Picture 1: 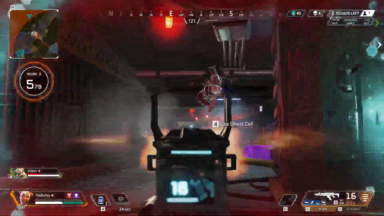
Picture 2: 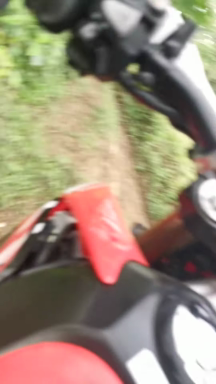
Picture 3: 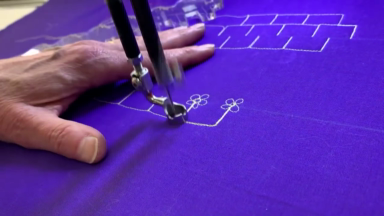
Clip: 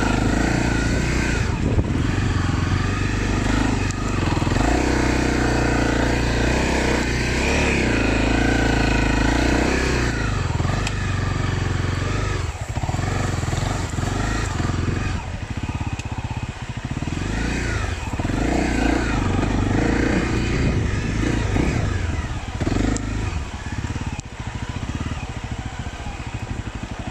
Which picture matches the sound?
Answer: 2